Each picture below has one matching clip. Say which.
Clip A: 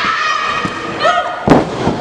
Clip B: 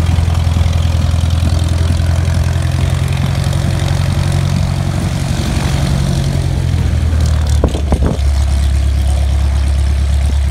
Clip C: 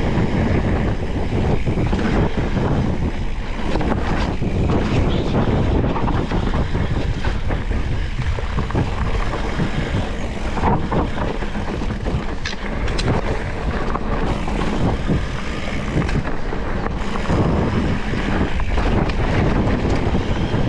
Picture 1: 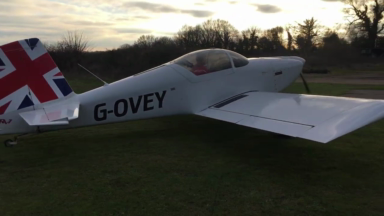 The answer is B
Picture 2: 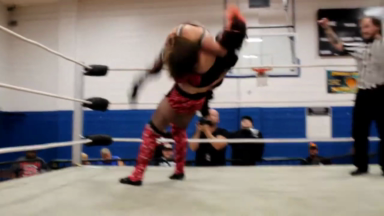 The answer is A